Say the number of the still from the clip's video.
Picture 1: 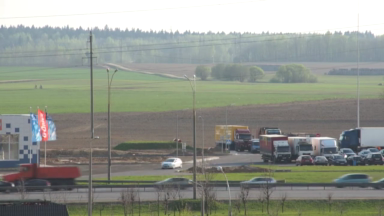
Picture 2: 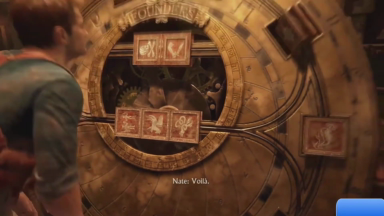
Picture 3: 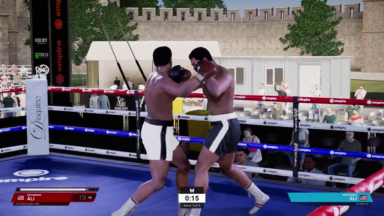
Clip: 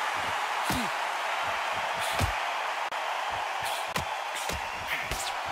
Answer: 3